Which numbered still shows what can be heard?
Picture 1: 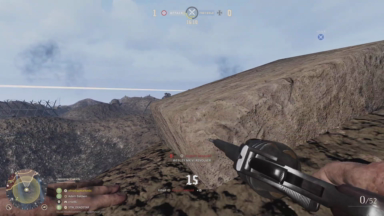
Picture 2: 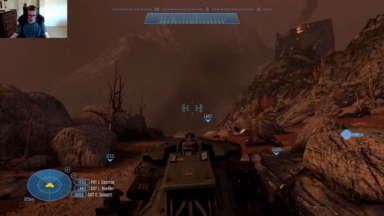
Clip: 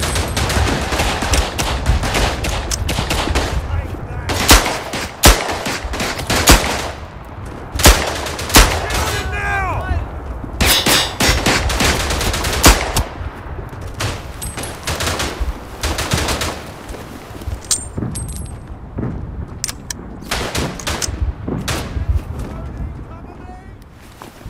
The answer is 1